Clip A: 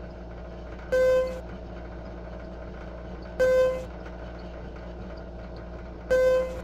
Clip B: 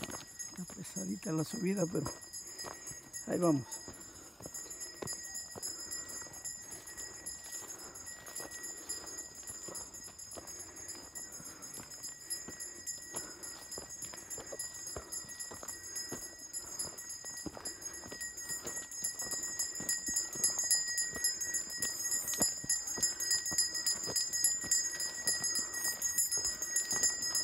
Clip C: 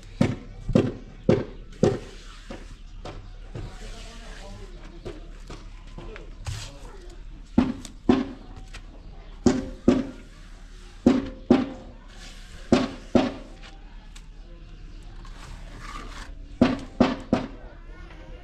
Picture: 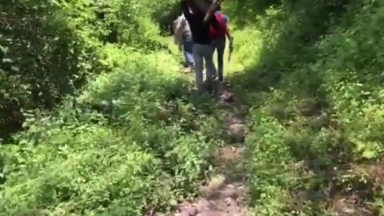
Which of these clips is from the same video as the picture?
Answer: B